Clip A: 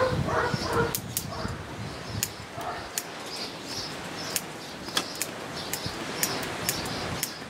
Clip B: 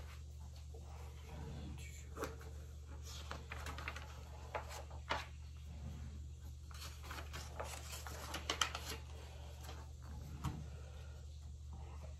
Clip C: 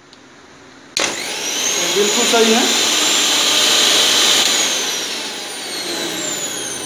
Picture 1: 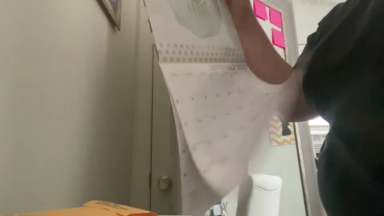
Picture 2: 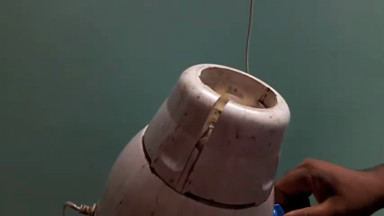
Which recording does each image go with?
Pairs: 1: B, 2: C